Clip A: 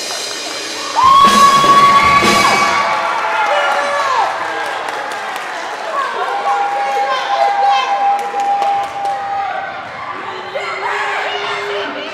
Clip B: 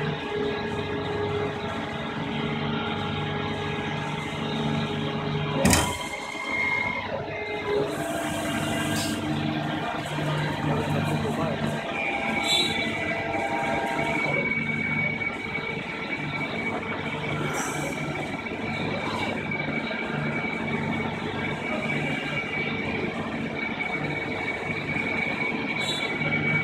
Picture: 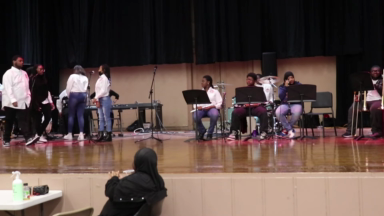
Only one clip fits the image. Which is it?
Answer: A